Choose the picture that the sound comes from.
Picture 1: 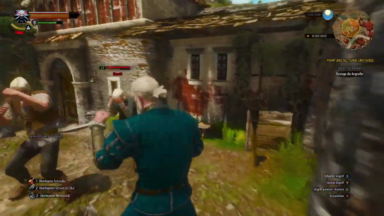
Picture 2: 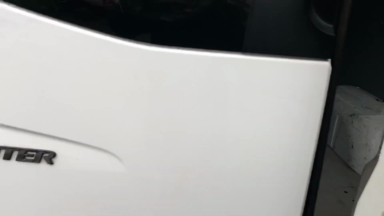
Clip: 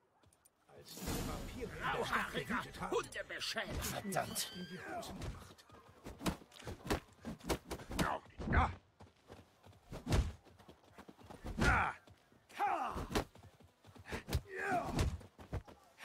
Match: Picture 1